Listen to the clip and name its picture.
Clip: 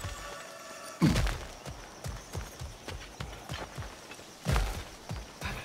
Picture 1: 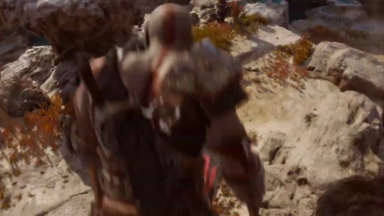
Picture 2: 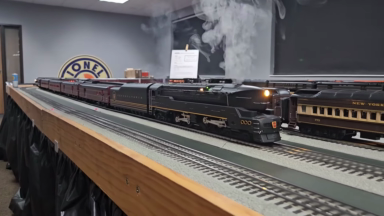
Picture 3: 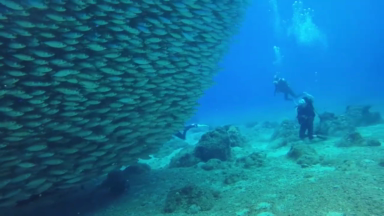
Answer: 1